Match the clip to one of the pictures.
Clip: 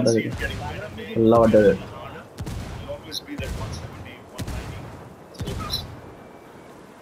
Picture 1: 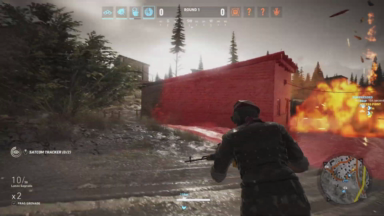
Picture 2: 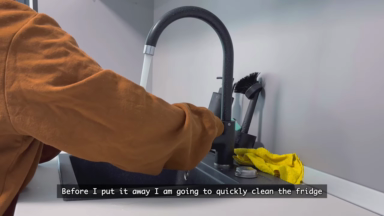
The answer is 1